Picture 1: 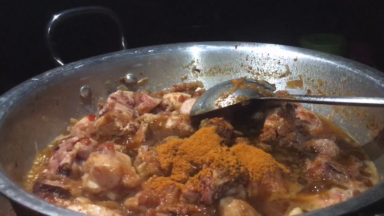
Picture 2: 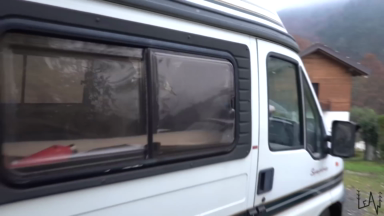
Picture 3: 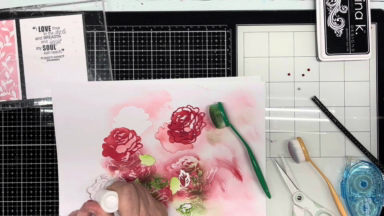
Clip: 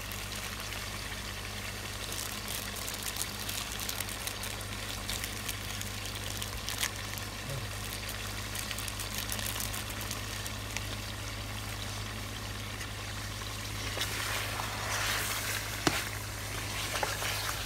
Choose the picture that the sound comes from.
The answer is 1